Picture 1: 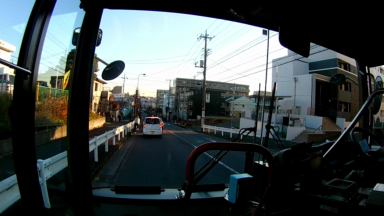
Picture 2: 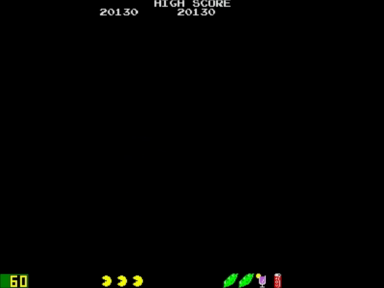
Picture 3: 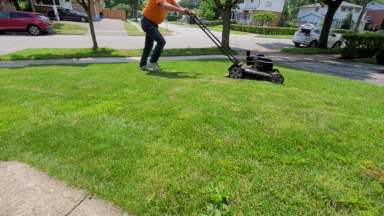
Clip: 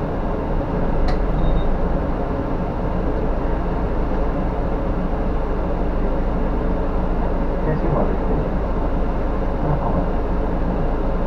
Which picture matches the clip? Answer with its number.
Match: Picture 1